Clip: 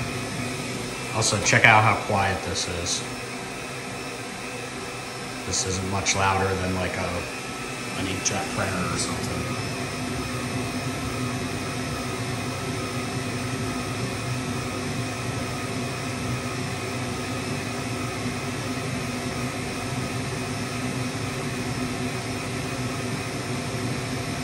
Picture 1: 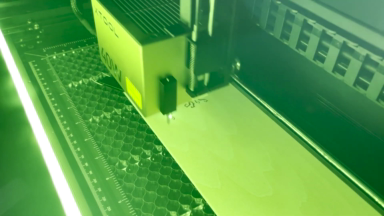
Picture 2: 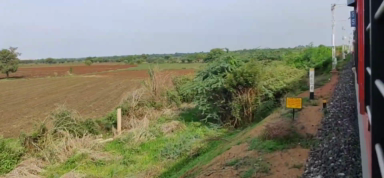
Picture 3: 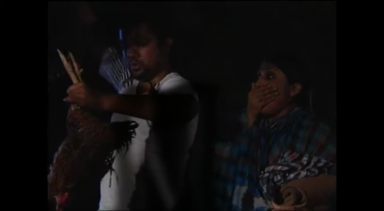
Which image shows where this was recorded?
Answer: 1